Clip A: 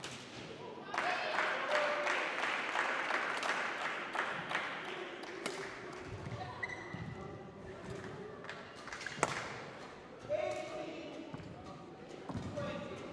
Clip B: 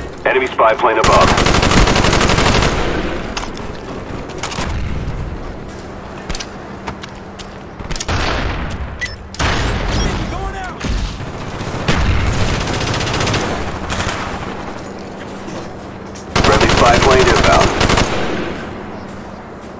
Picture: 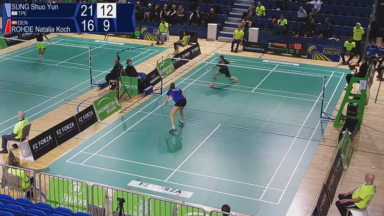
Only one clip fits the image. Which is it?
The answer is A